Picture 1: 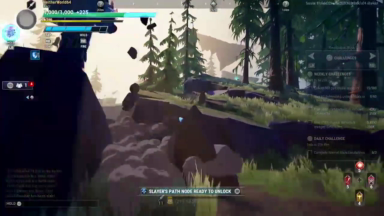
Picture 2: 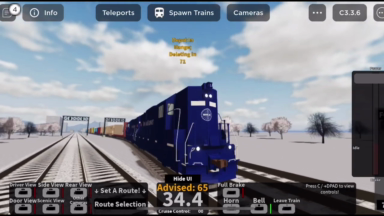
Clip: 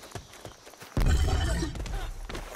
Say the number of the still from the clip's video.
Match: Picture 1